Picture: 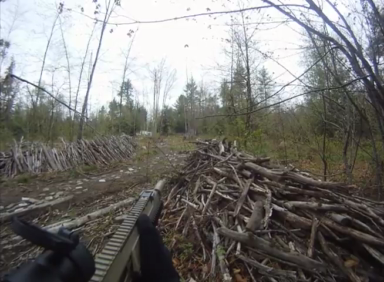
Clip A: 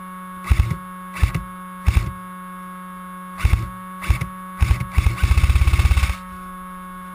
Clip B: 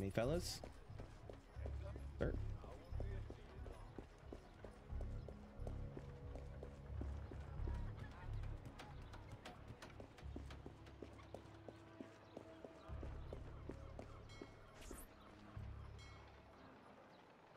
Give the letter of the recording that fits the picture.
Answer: A